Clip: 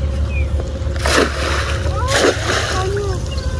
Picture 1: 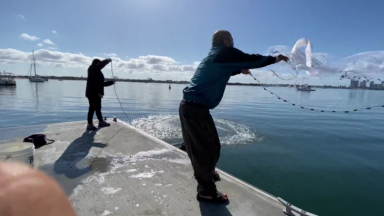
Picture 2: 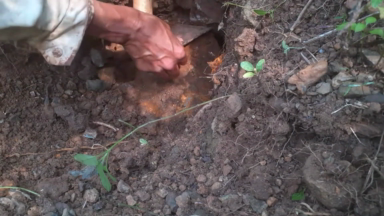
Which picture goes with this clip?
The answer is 1